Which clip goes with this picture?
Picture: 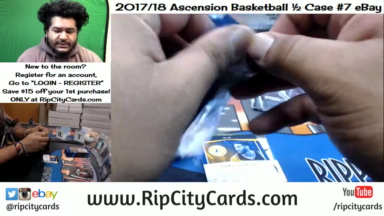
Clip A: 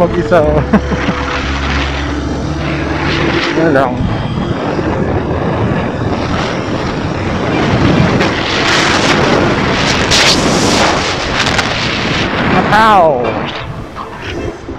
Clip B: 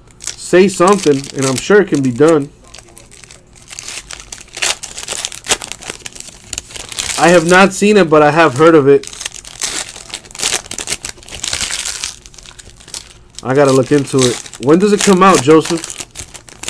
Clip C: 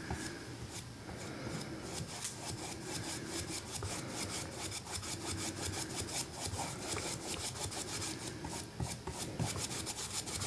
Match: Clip B